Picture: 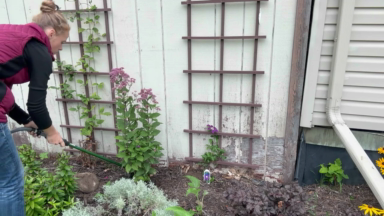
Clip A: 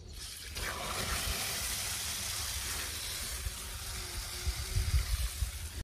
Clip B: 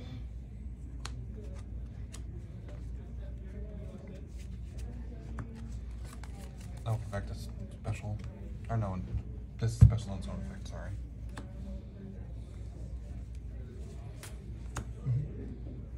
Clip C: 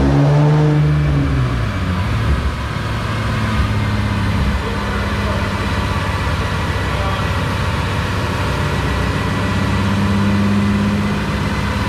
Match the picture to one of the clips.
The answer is A